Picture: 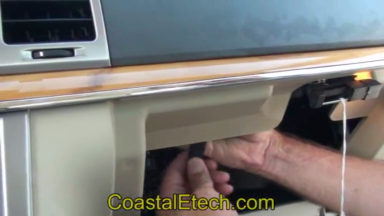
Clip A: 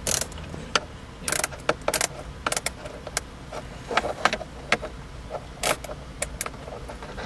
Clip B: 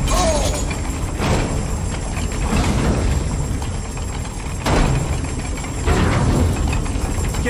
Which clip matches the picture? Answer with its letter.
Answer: A